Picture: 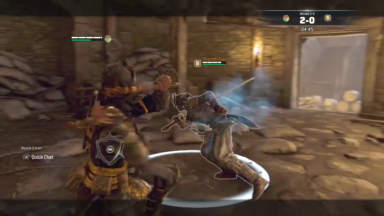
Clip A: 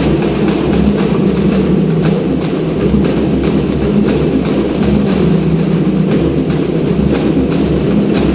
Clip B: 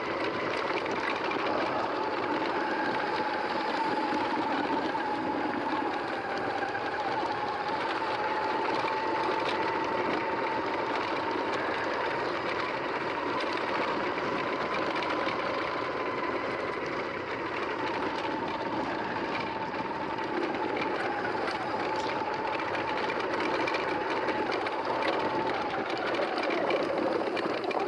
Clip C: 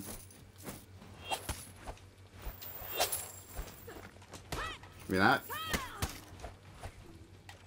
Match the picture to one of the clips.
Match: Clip C